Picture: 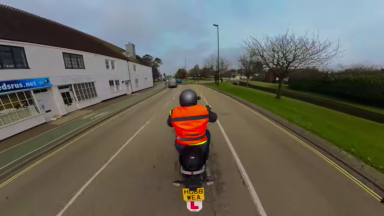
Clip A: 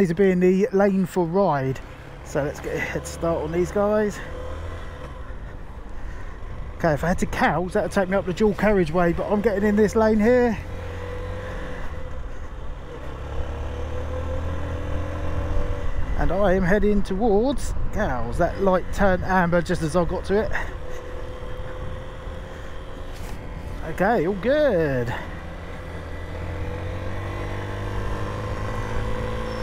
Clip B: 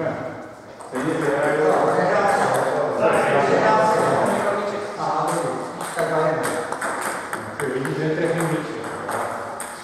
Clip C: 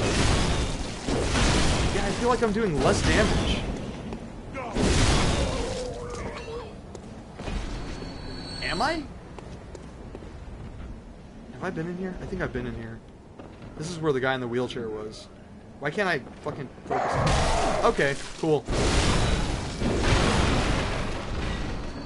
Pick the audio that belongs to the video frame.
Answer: A